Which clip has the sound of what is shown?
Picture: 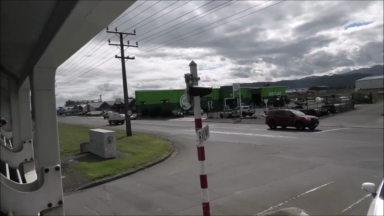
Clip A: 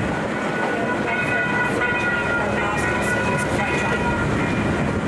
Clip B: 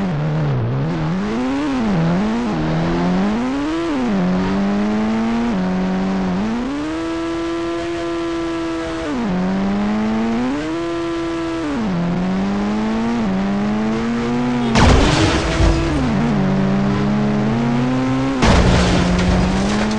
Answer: A